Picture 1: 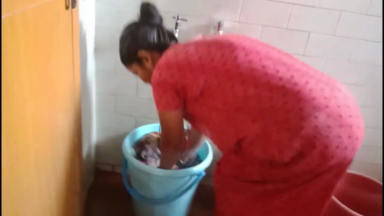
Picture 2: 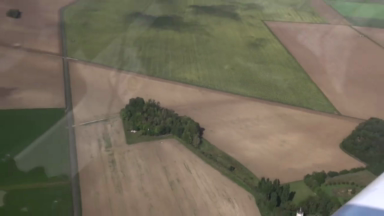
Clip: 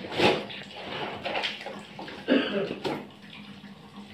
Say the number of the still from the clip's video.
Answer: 1